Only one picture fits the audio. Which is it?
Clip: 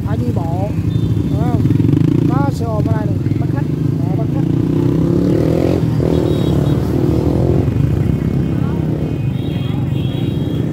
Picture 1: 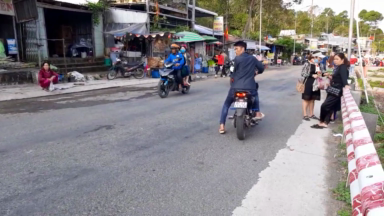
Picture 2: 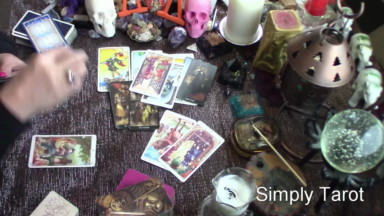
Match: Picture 1